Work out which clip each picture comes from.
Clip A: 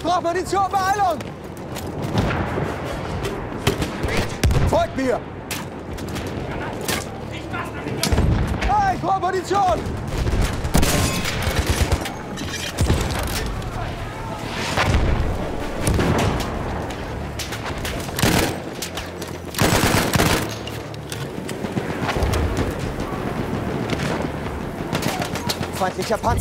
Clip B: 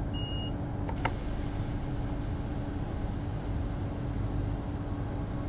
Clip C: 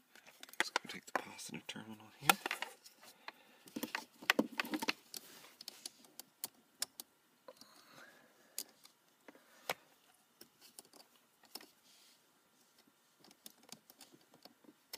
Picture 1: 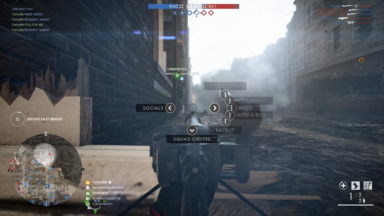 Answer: A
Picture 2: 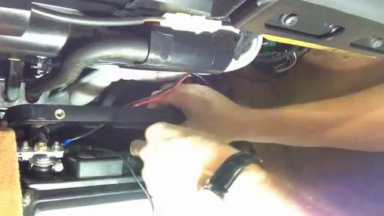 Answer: C